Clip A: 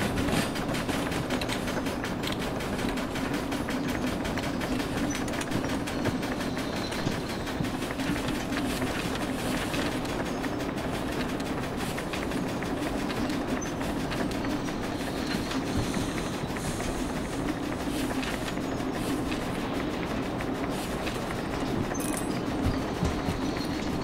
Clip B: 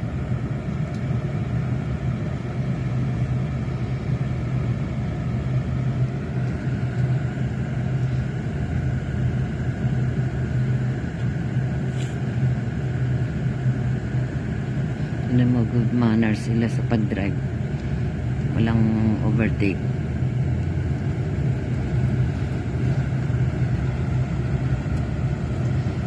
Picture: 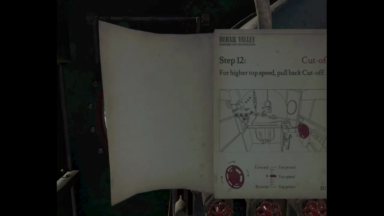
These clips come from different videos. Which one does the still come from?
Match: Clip A